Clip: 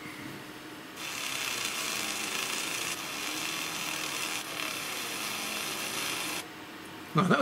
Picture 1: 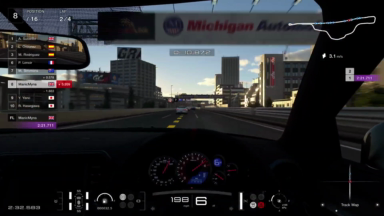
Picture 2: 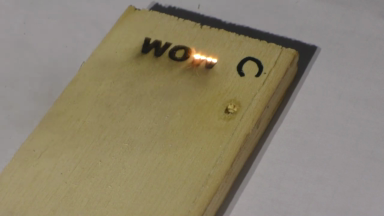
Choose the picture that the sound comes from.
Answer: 2